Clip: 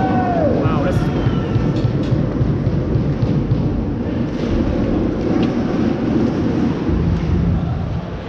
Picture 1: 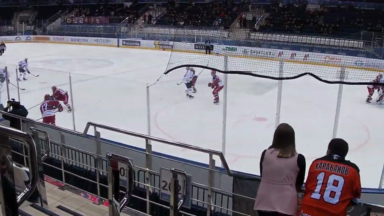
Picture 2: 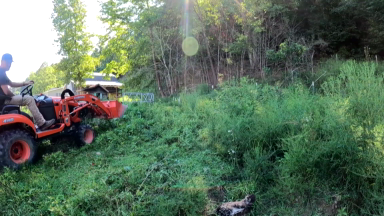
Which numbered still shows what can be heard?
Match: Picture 1